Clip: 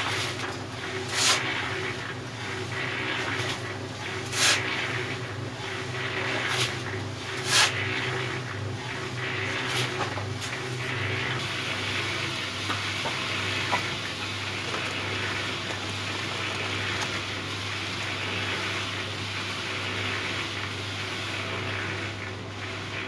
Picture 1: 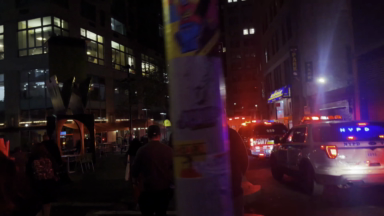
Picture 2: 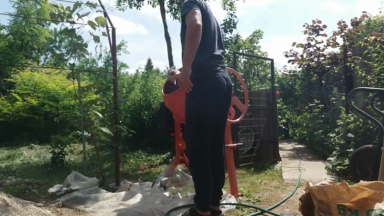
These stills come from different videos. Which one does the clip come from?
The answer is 2